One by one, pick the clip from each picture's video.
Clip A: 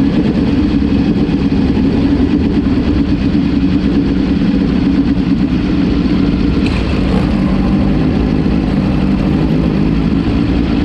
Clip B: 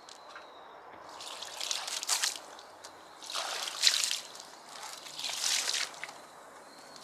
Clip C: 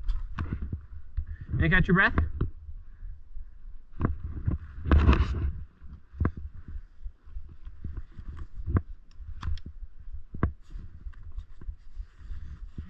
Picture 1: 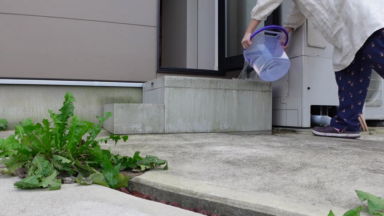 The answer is B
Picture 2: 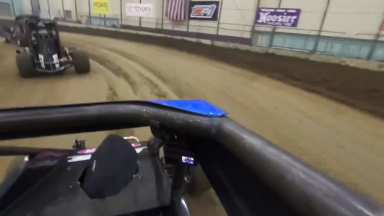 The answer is A